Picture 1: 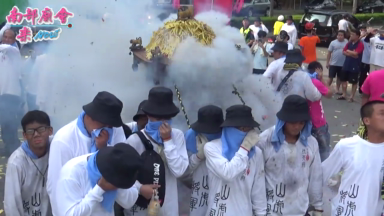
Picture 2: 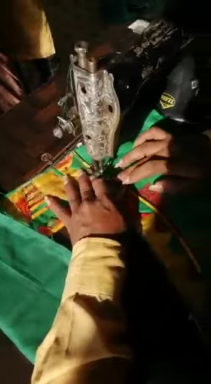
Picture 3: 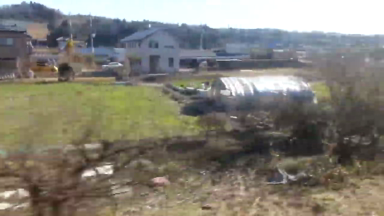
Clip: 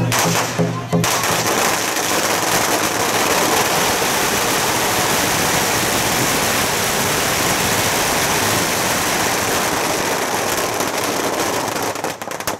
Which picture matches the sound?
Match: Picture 1